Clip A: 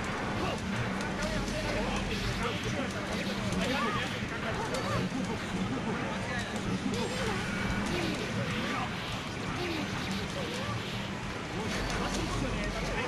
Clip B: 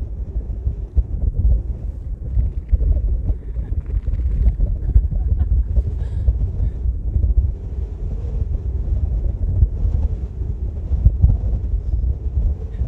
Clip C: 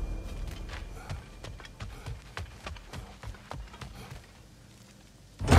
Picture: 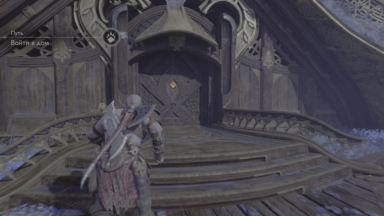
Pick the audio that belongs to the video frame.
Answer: C